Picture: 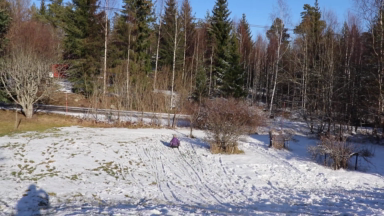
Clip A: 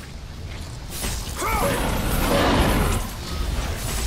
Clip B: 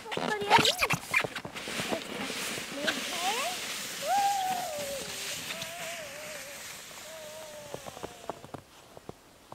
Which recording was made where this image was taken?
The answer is B